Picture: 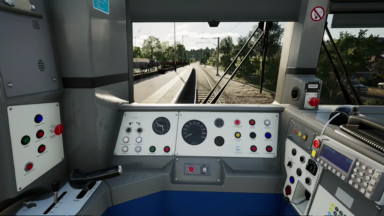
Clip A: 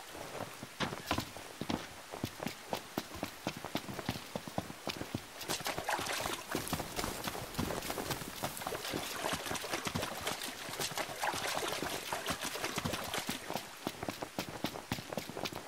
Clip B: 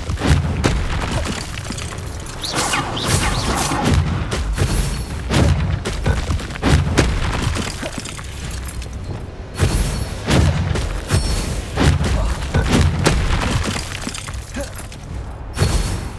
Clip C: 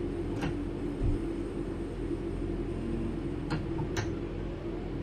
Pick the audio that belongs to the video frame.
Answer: C